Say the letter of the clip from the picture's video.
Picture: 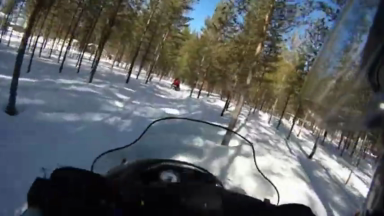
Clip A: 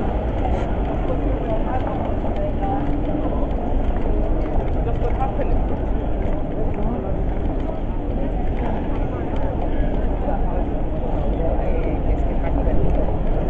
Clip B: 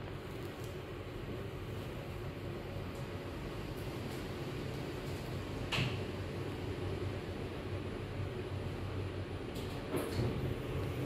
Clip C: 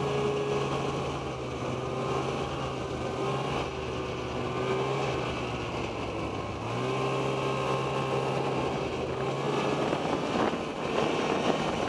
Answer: C